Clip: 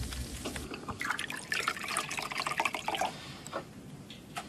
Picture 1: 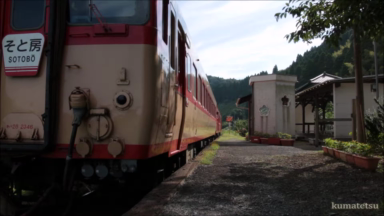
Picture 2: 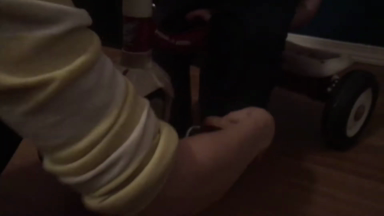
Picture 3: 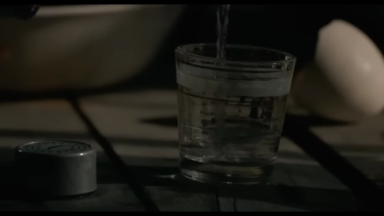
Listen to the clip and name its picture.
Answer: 3